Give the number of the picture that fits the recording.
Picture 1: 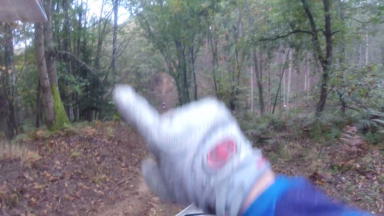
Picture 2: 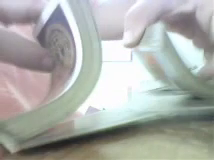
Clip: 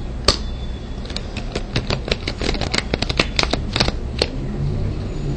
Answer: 2